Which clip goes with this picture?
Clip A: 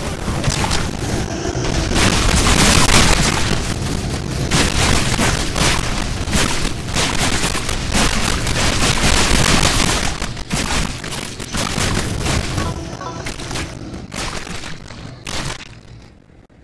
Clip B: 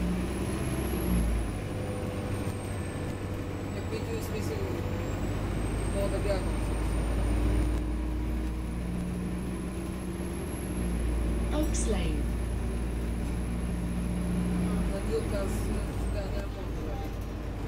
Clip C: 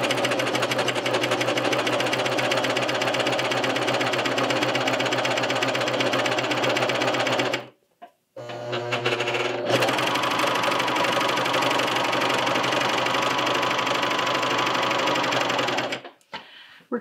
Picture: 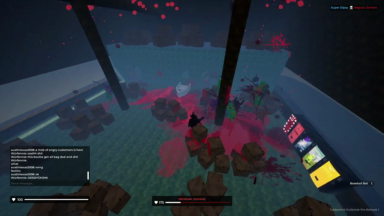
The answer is A